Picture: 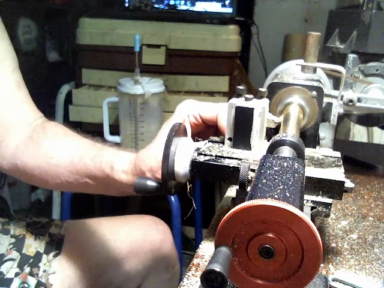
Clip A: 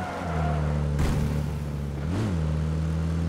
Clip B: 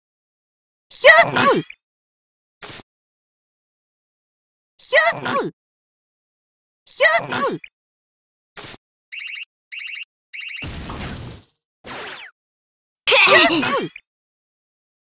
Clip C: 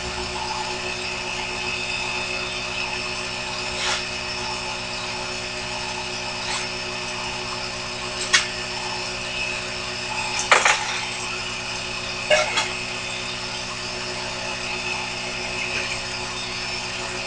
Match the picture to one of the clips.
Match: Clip C